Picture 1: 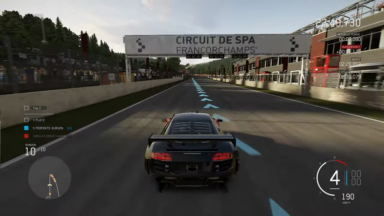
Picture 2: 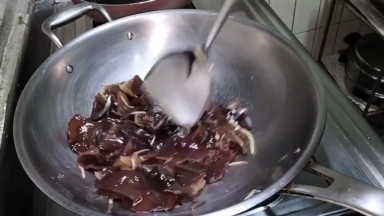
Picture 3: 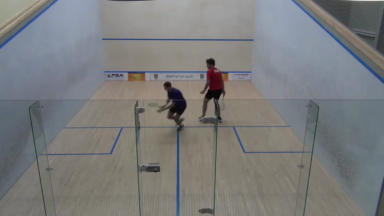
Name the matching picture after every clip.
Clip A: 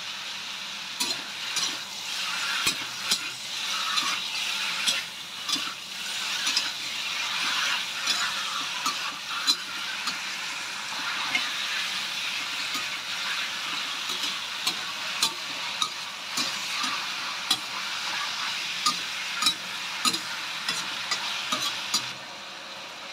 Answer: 2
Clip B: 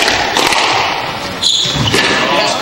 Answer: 3